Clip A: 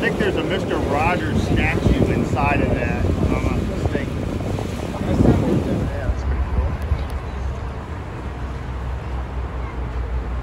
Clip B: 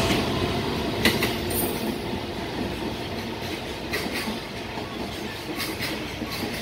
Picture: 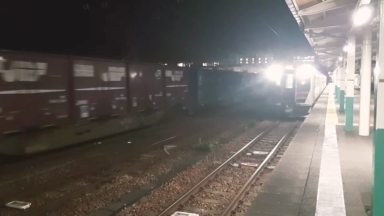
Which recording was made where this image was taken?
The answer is B